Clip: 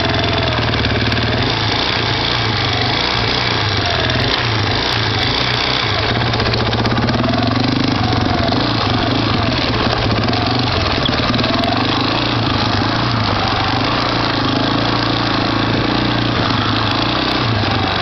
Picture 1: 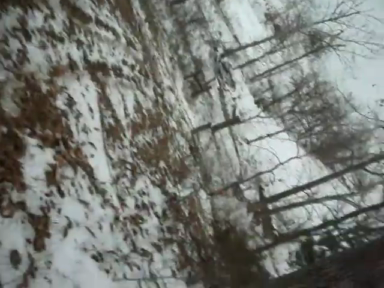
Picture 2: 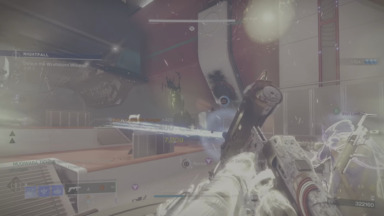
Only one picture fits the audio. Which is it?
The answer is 1